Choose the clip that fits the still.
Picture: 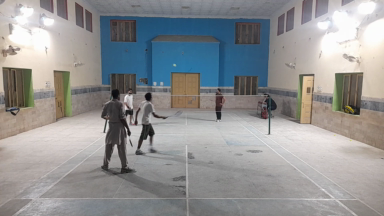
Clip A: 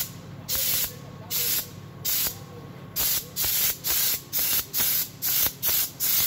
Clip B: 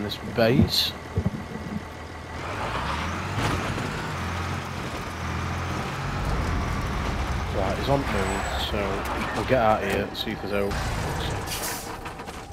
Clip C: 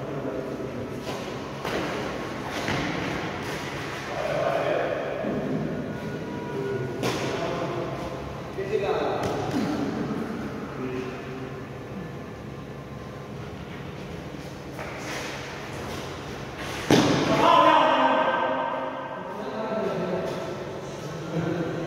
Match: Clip C